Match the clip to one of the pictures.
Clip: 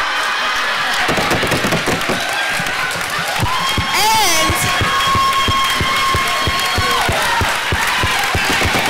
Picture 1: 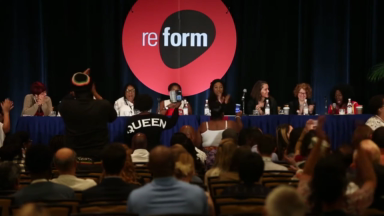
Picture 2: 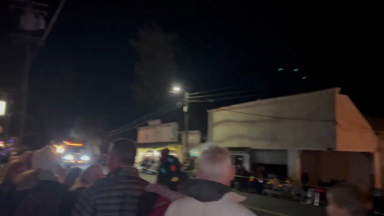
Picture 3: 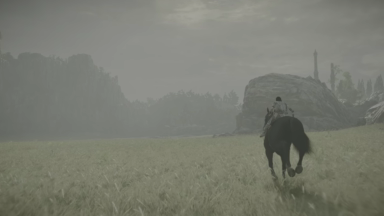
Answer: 1